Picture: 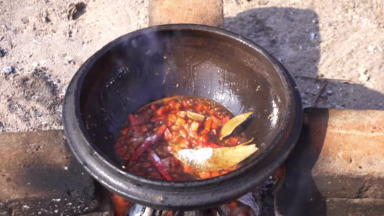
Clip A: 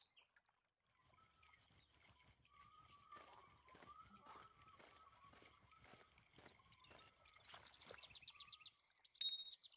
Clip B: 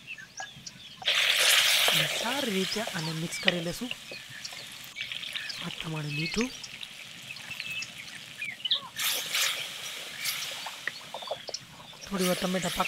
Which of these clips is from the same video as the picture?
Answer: B